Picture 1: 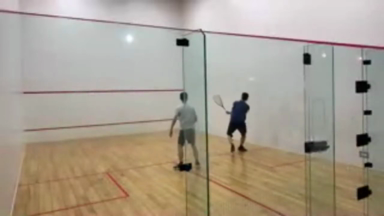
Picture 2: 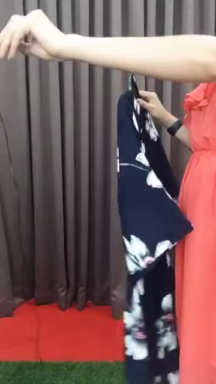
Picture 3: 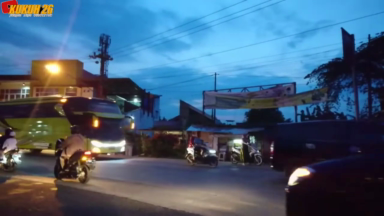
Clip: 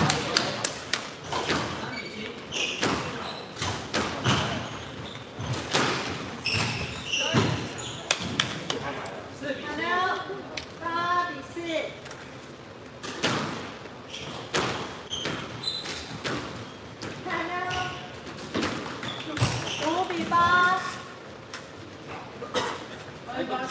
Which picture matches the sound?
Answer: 1